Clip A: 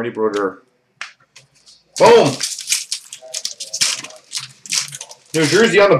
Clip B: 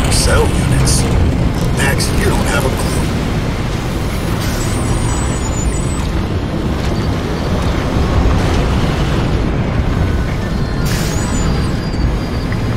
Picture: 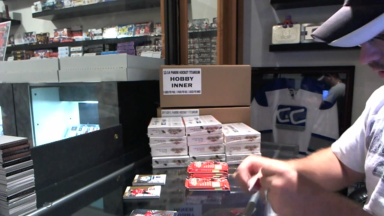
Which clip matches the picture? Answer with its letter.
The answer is A